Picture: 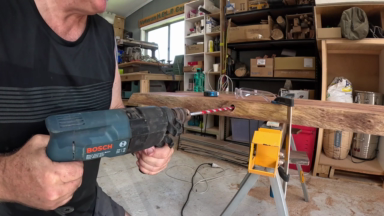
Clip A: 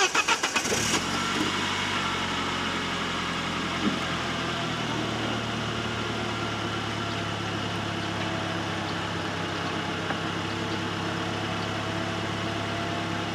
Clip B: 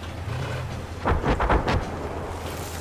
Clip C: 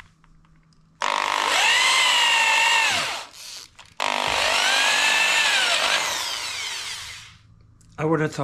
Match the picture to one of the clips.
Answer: C